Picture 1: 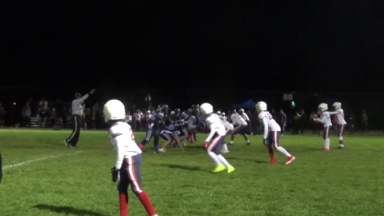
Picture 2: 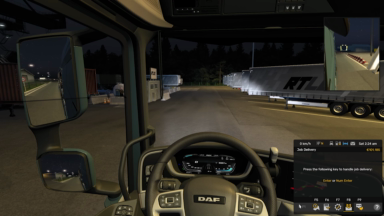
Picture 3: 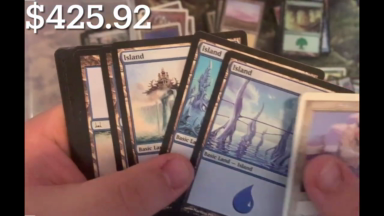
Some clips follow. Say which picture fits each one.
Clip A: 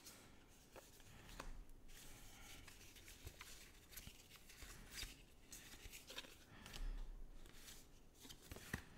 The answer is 3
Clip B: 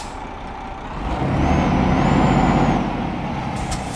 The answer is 2